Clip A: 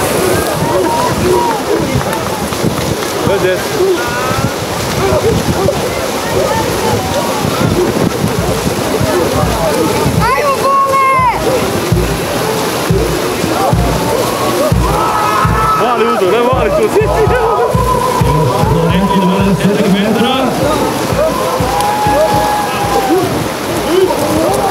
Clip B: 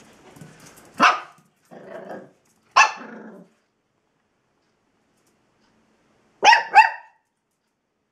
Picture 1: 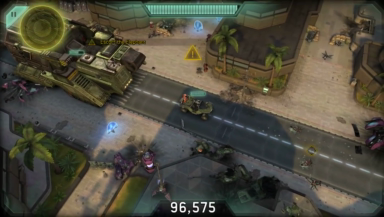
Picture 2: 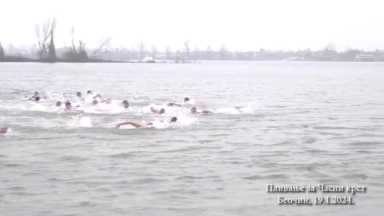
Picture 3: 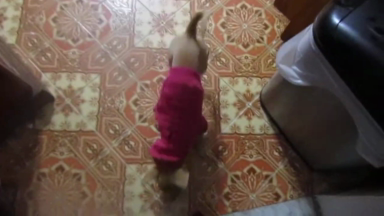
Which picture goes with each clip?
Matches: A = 2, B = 3